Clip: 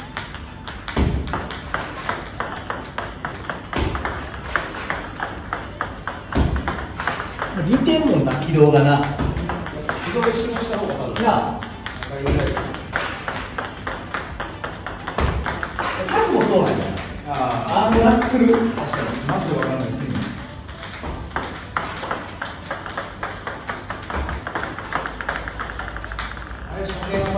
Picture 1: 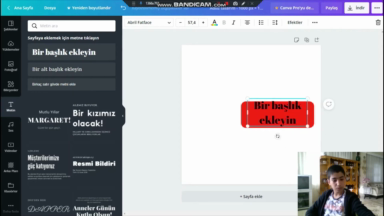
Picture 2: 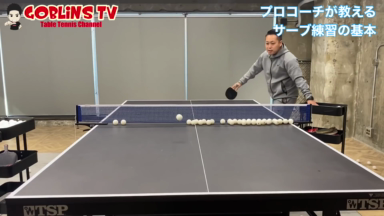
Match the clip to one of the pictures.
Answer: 2